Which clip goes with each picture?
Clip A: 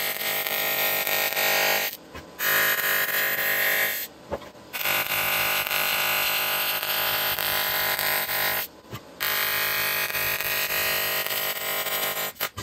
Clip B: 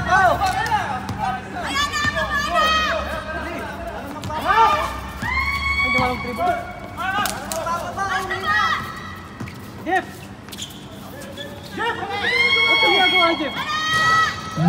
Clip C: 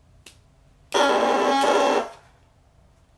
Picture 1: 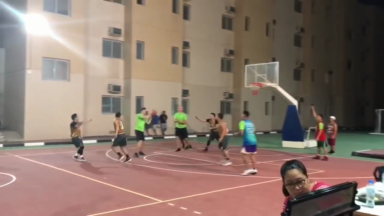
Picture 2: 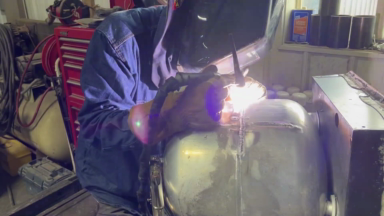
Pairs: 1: B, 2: A